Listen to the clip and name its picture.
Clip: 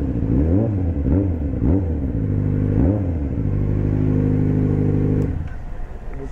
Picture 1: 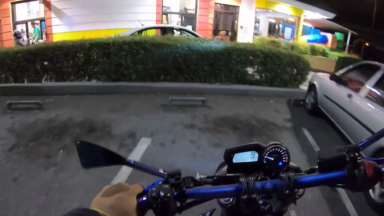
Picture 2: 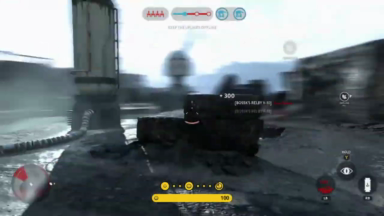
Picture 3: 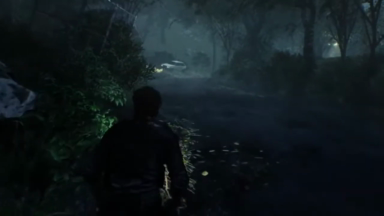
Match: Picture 1